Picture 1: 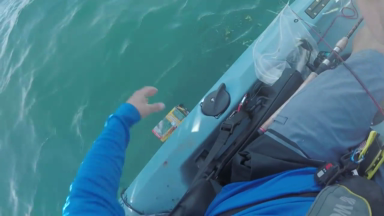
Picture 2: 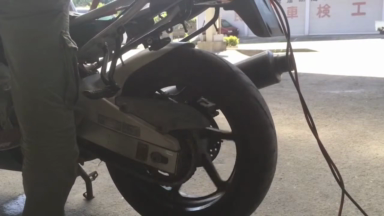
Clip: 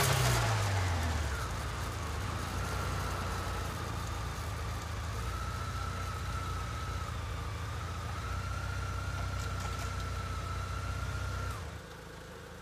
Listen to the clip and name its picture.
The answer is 2